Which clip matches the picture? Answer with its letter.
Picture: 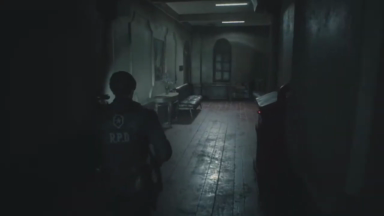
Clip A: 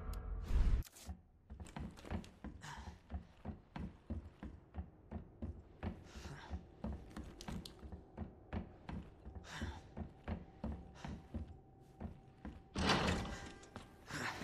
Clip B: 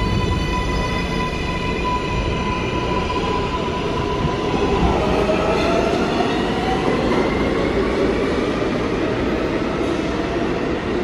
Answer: A